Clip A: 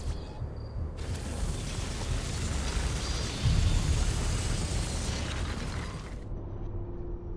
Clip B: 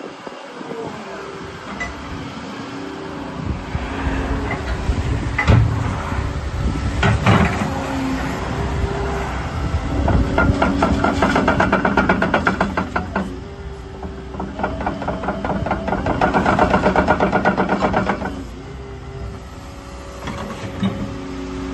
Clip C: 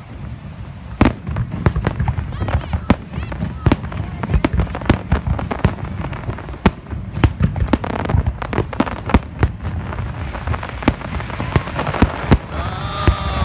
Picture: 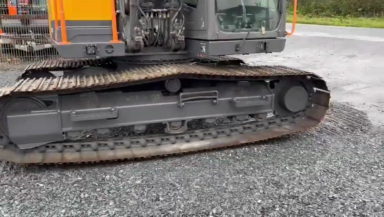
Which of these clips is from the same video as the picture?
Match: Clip B